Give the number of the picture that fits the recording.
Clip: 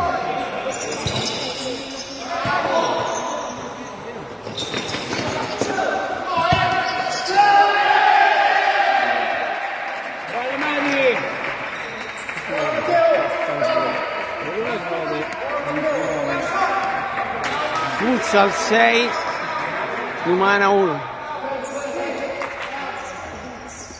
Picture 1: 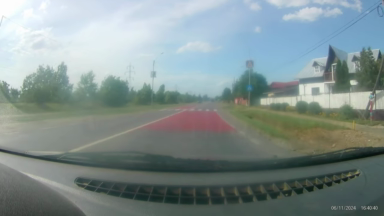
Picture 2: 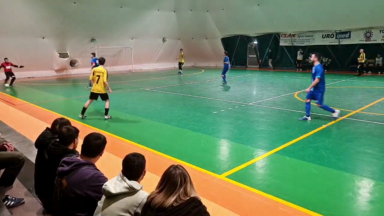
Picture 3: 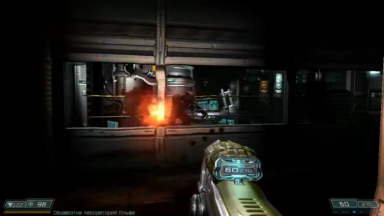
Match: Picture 2